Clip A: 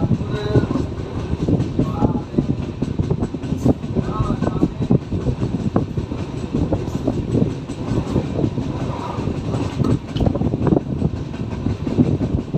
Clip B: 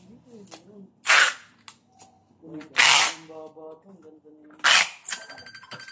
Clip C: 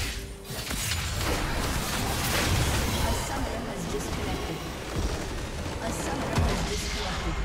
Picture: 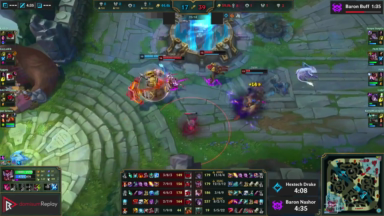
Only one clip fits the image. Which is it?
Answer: C